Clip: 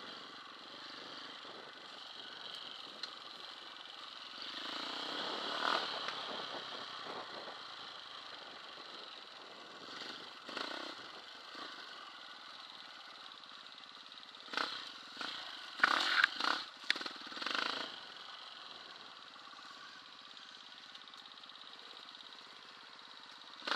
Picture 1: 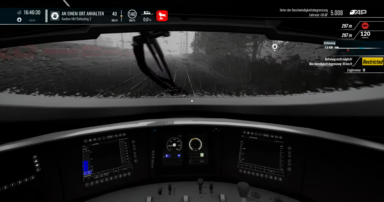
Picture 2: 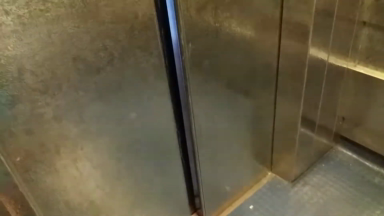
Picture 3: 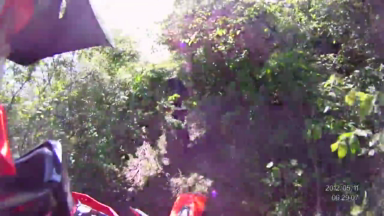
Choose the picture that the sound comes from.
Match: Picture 3